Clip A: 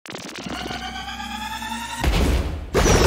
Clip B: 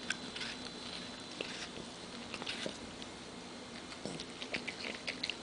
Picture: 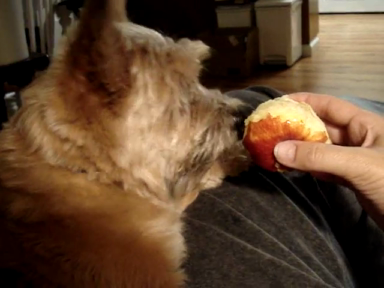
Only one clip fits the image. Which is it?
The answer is B